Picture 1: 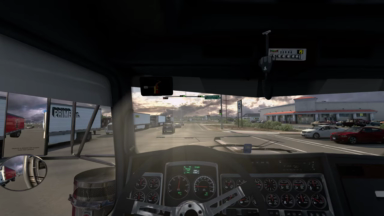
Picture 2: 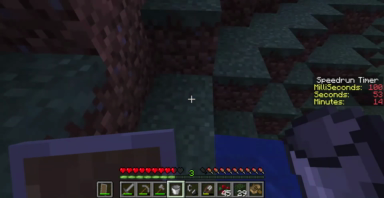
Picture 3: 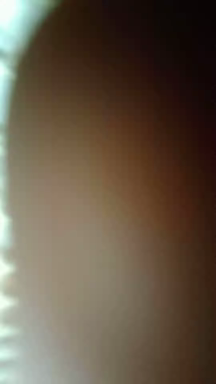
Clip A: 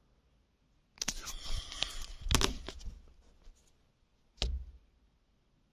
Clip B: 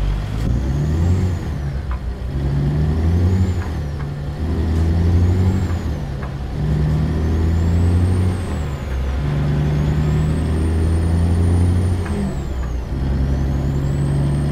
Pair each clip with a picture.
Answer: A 3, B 1